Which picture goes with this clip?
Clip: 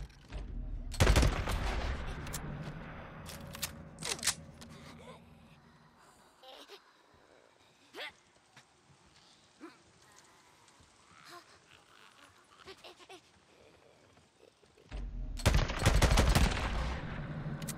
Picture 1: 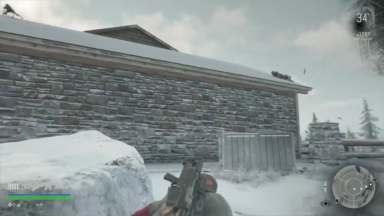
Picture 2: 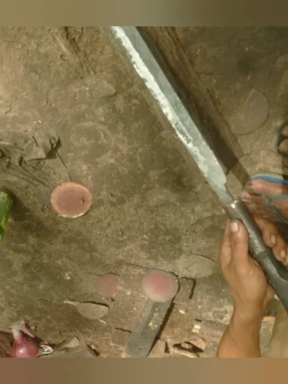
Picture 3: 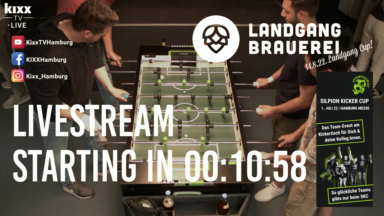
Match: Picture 1